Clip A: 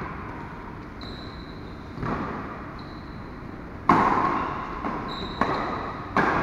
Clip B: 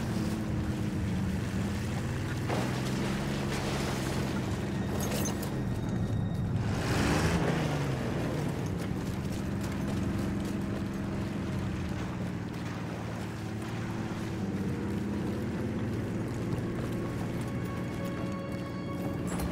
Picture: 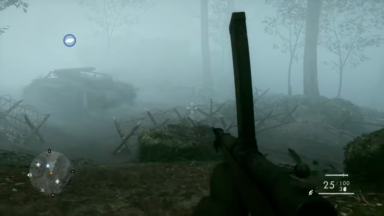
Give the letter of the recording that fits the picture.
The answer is B